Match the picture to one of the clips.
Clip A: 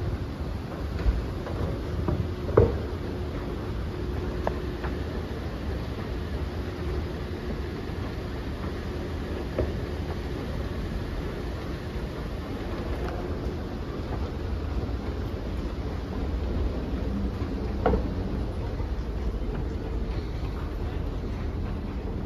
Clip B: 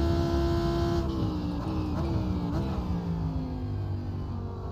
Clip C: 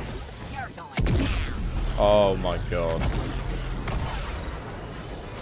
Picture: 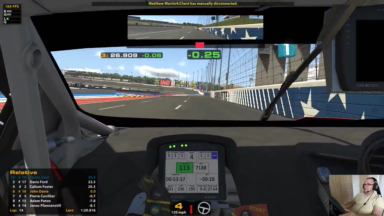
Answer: B